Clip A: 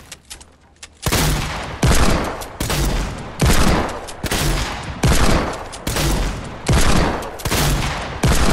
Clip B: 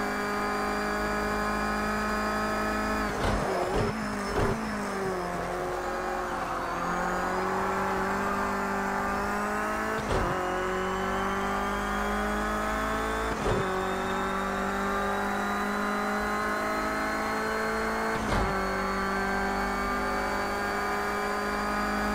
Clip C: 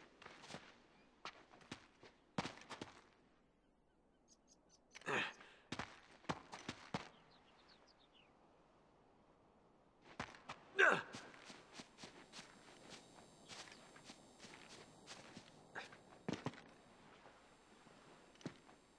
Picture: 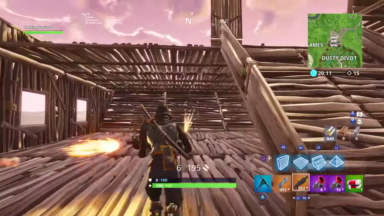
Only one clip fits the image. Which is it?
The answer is A